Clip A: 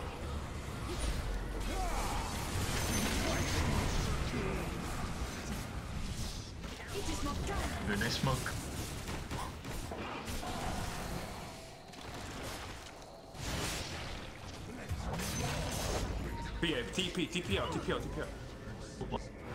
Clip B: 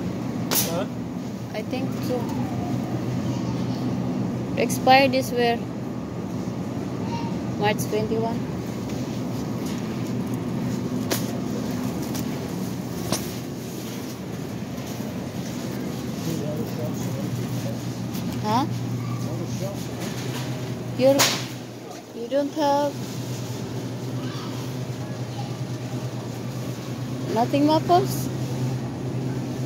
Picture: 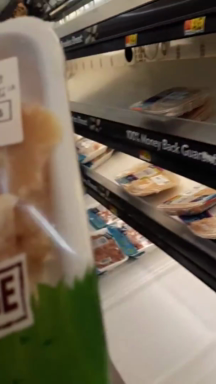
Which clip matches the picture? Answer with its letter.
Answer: B